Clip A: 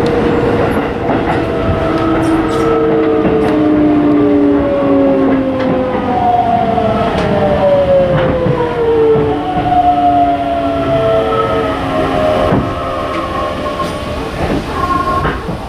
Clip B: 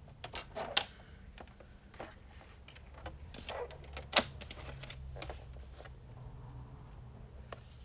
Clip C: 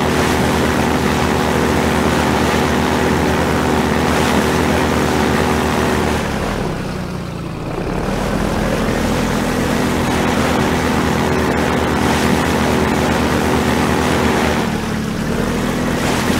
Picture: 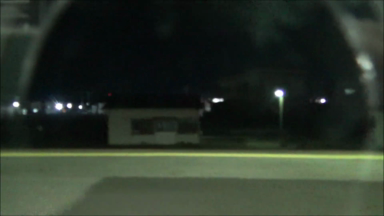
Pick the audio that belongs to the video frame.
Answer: A